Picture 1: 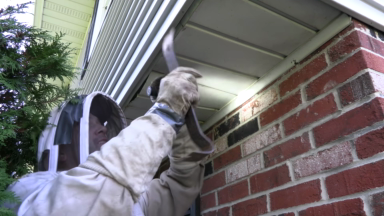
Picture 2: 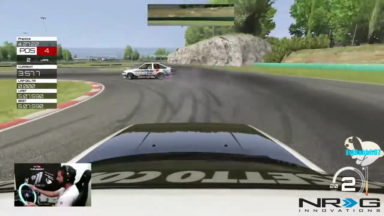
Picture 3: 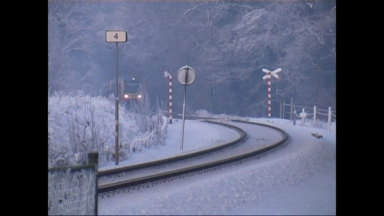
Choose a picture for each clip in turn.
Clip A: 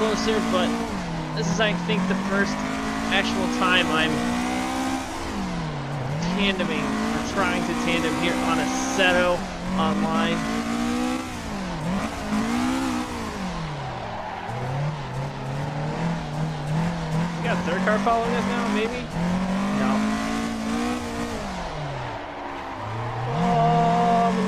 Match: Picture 2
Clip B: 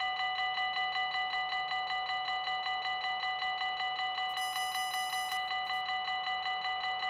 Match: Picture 3